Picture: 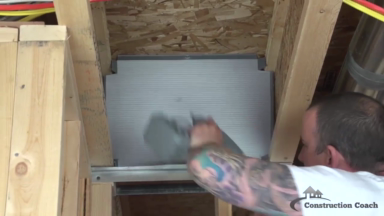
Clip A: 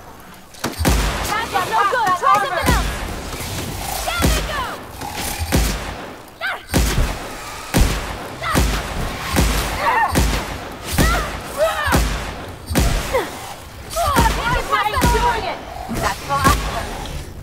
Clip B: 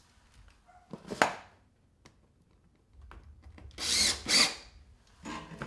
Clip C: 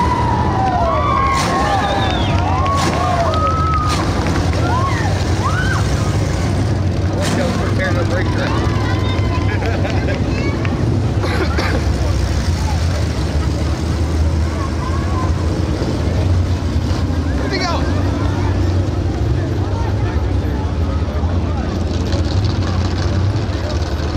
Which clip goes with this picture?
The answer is B